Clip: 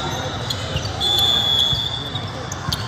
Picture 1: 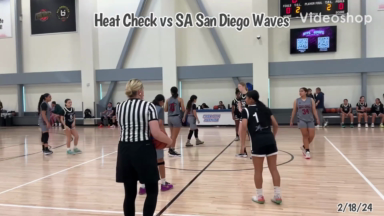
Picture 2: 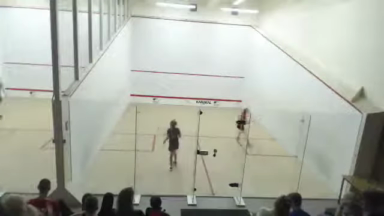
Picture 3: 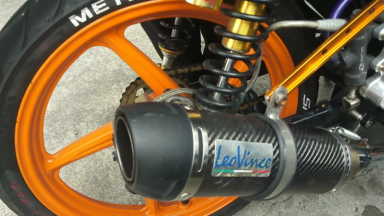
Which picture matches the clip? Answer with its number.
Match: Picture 1